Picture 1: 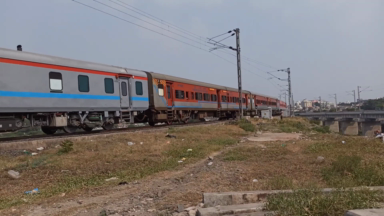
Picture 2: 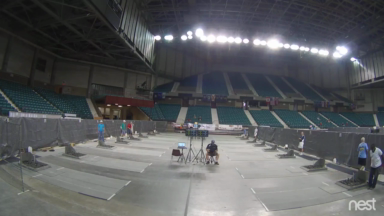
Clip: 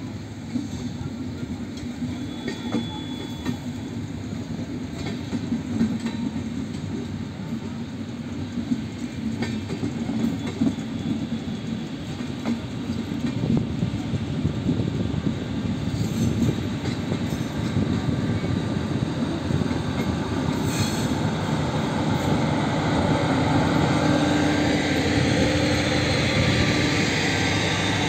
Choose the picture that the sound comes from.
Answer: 1